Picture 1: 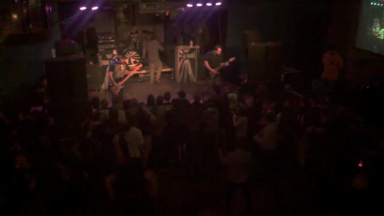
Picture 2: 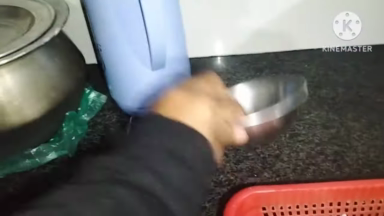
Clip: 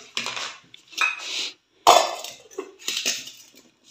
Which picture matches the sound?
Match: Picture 2